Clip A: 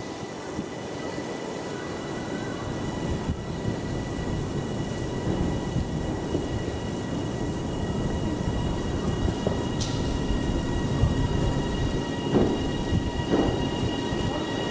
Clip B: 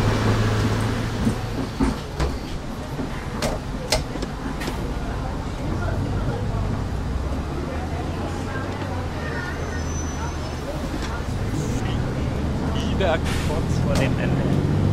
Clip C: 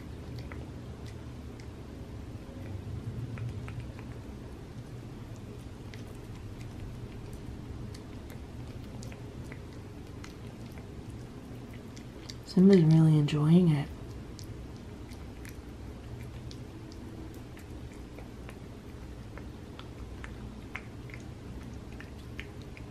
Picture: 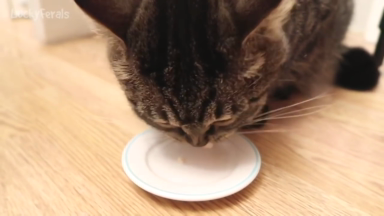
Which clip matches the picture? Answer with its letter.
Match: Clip C